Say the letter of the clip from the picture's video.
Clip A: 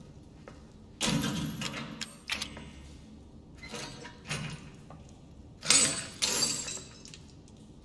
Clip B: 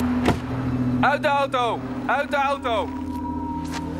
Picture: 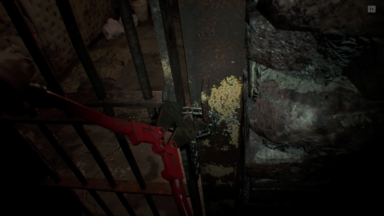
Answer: A